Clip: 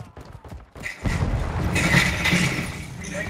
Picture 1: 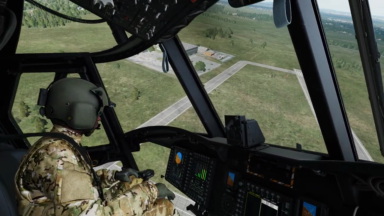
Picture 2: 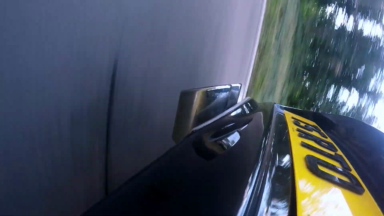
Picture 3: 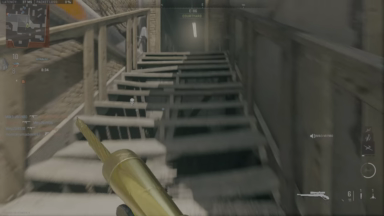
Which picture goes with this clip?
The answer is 3